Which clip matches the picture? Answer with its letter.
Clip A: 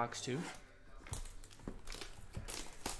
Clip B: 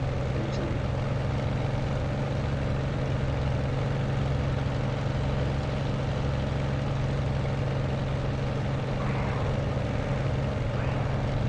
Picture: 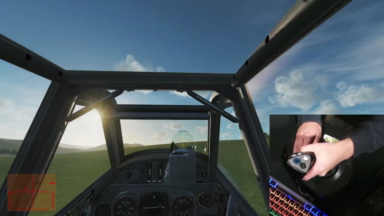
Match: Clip B